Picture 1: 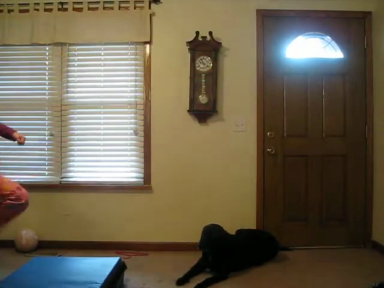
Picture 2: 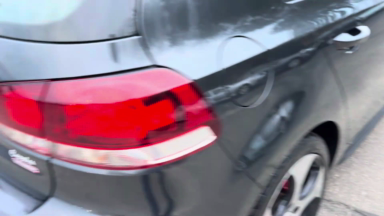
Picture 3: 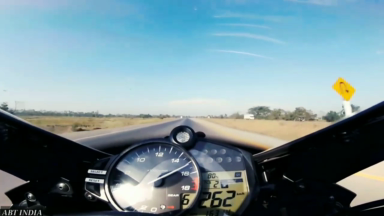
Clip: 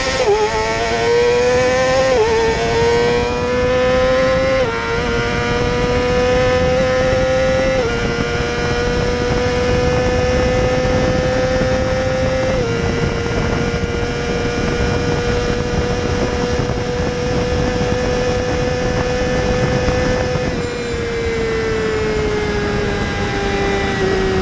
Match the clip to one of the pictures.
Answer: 3